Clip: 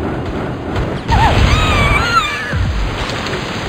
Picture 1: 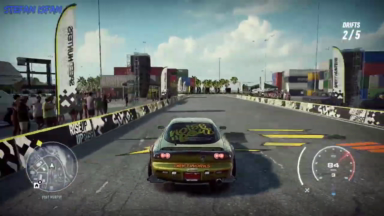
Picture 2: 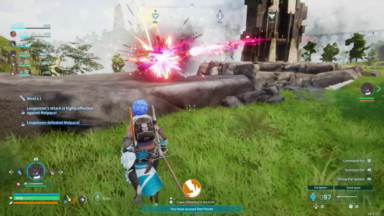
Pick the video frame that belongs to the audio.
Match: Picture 2